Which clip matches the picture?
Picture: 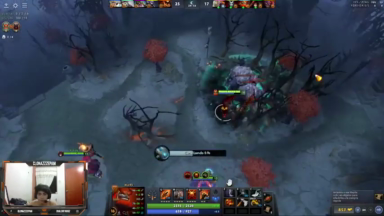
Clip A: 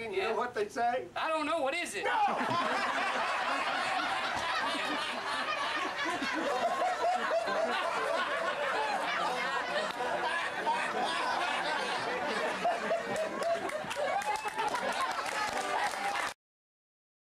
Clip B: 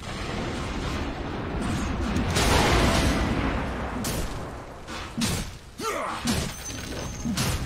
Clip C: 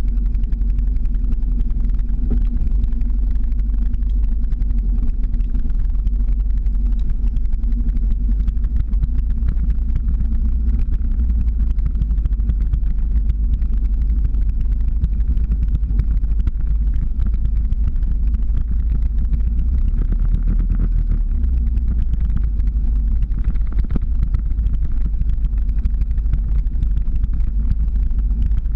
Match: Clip B